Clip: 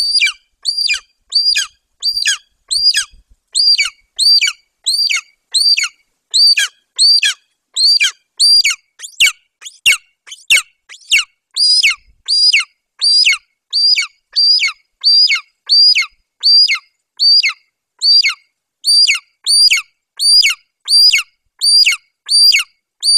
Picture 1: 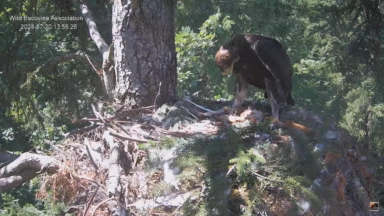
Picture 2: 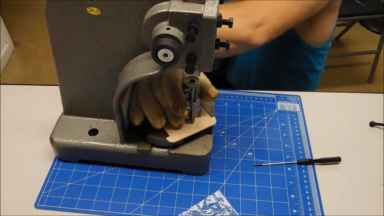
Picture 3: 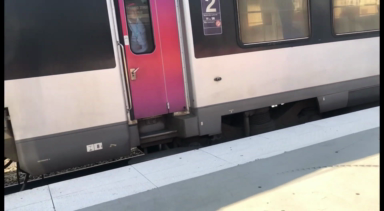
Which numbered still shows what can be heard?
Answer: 1